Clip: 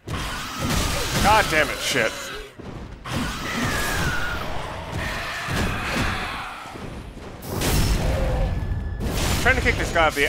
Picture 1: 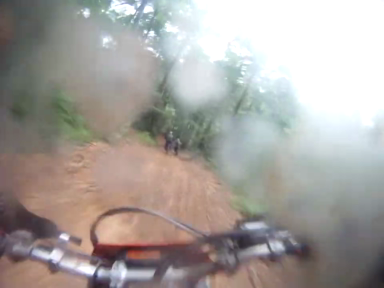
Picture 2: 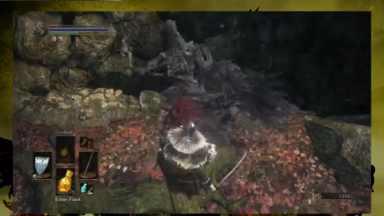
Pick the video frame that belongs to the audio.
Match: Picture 2